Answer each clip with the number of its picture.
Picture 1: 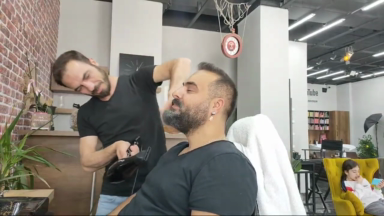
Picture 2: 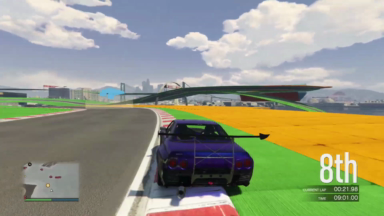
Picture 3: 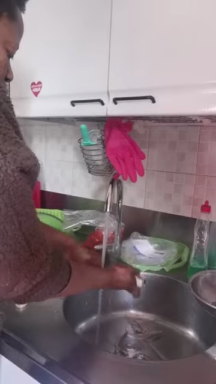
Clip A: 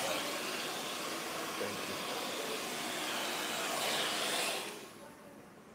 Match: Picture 1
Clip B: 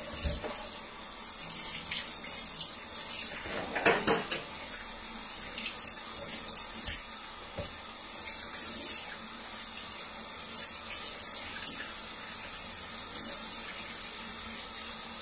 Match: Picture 3